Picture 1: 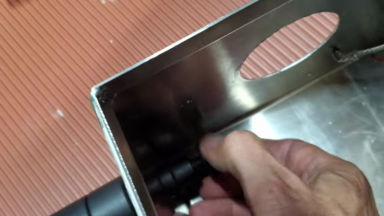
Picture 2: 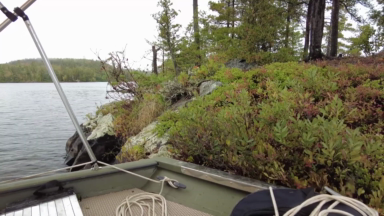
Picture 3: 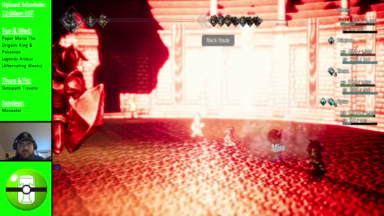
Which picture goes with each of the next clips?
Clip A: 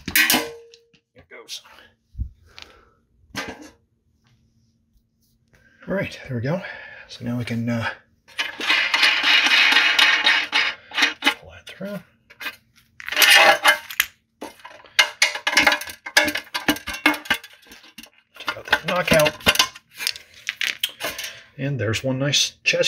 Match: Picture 1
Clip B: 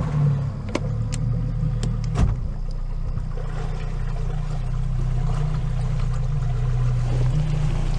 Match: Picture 2